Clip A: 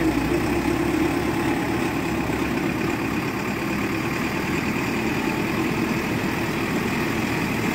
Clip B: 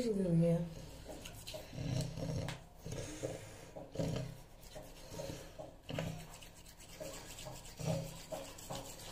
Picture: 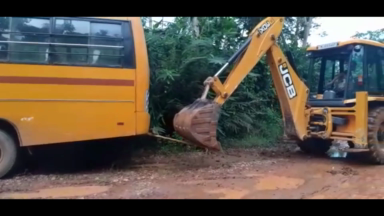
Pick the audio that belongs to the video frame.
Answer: A